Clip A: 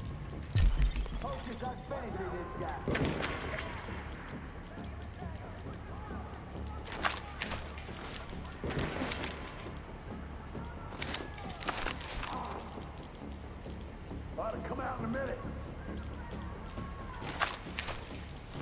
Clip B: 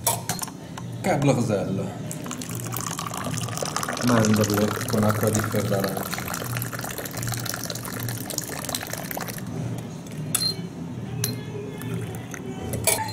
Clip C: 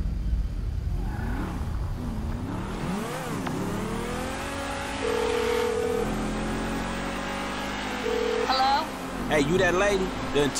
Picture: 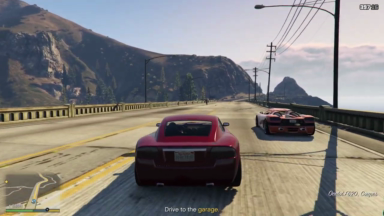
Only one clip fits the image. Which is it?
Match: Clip C